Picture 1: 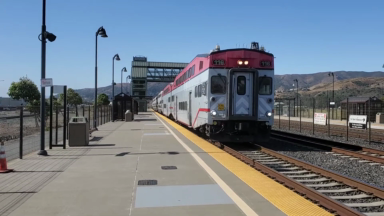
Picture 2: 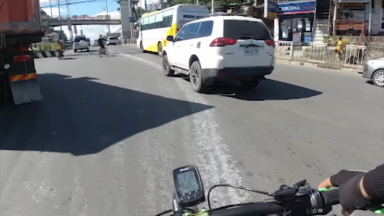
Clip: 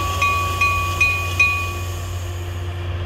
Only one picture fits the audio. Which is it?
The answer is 1